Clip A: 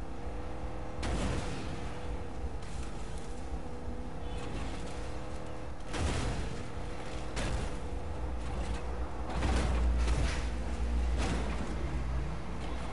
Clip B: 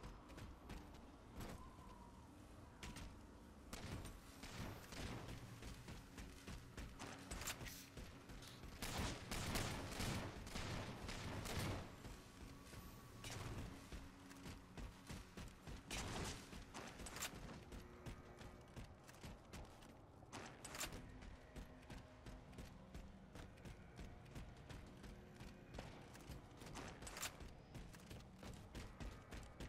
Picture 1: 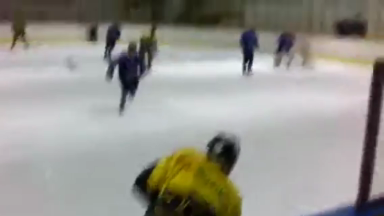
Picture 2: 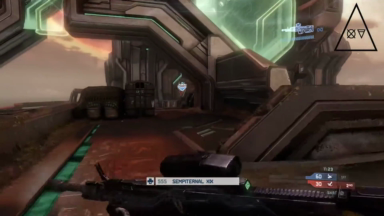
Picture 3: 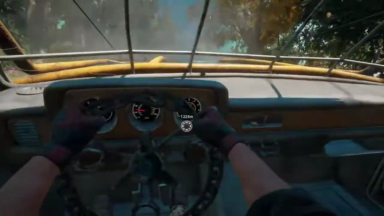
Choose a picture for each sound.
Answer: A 3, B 2